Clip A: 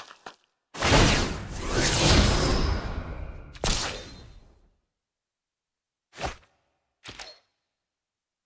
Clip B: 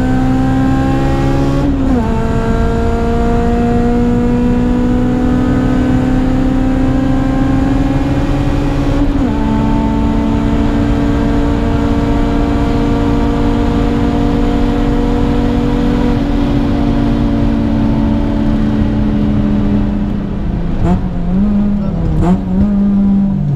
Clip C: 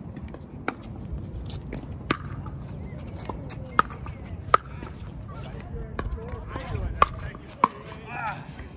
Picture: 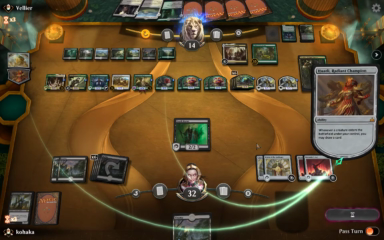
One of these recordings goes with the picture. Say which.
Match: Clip A